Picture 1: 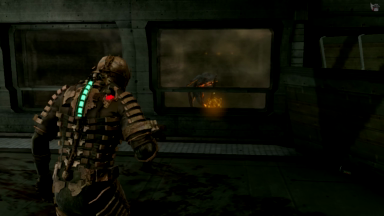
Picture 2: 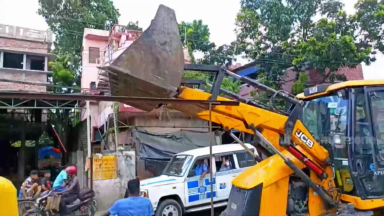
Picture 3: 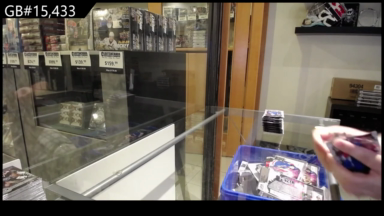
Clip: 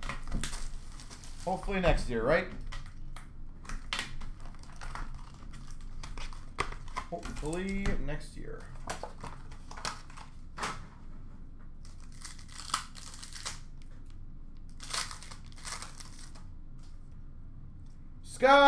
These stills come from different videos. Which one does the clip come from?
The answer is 3